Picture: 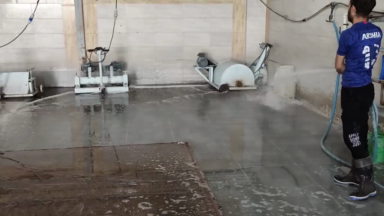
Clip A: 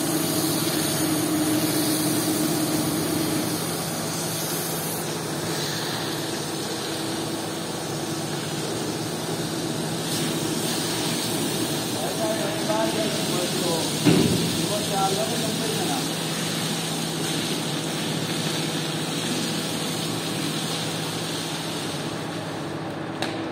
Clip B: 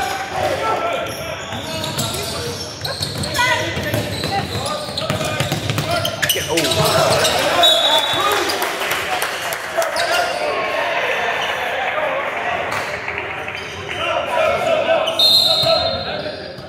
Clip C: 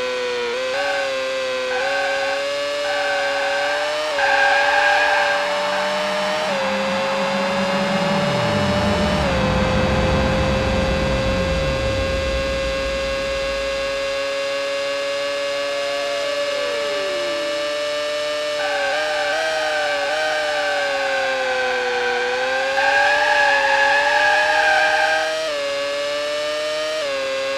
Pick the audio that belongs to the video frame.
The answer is A